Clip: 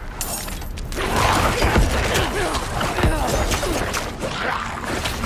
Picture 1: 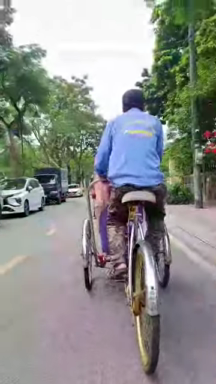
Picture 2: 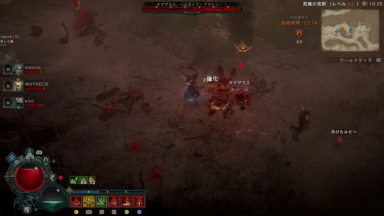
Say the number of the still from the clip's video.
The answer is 2